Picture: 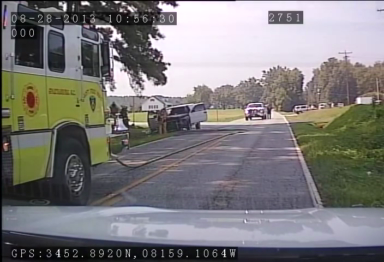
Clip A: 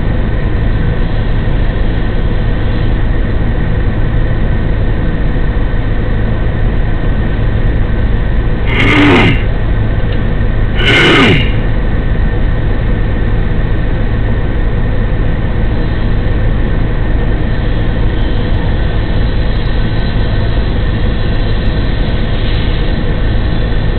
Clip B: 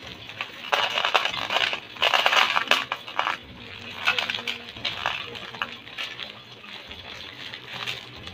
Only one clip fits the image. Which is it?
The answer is A